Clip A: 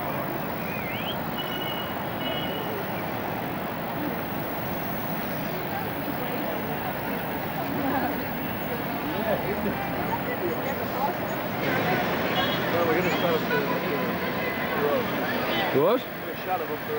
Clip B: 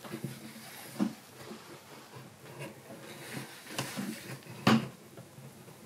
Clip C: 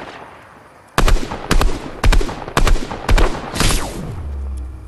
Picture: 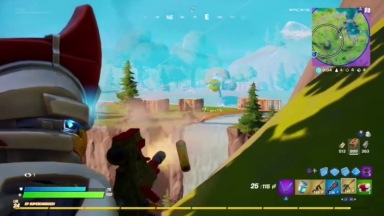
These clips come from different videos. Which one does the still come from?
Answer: C